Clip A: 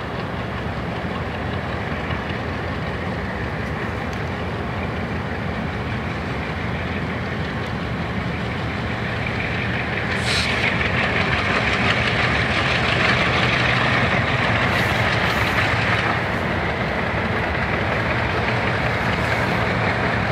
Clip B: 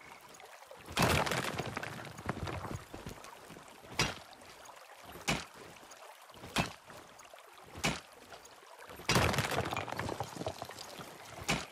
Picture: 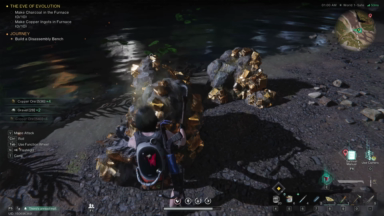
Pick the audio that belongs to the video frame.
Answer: B